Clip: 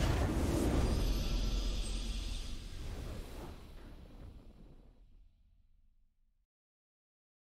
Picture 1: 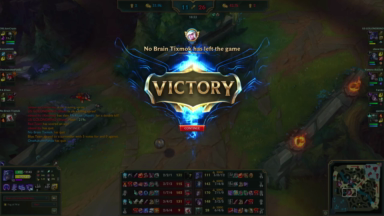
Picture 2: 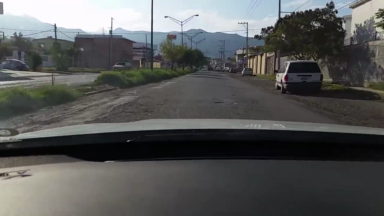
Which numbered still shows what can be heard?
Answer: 1